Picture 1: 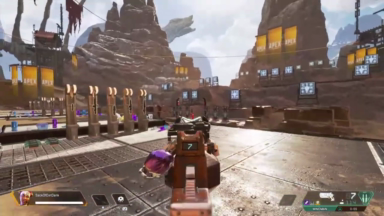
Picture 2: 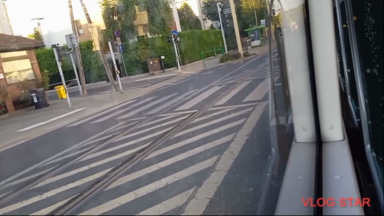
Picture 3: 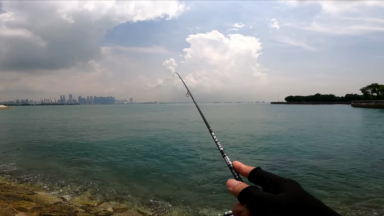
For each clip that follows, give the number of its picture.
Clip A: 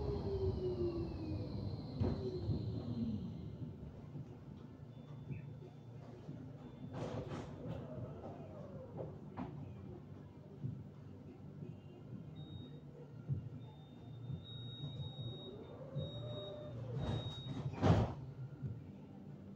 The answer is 2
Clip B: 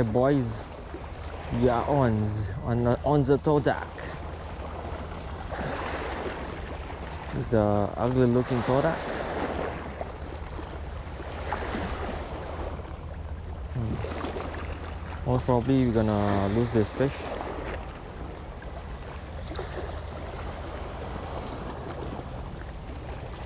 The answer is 3